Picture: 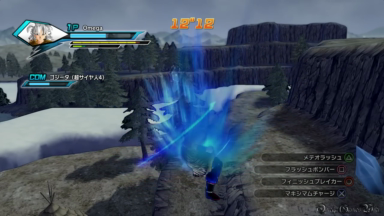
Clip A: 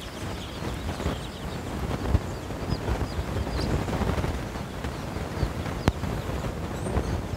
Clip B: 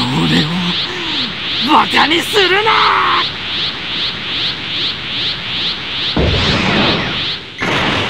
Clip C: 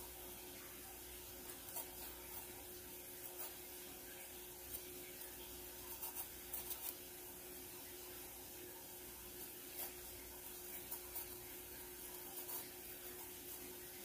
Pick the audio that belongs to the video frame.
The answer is B